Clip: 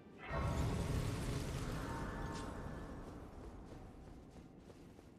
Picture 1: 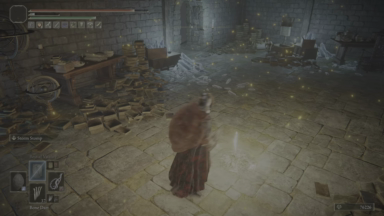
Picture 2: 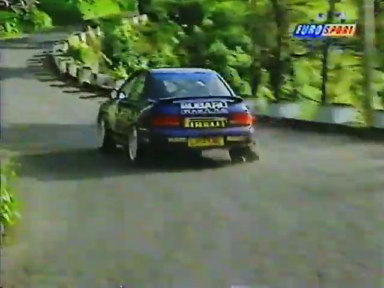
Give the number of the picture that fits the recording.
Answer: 1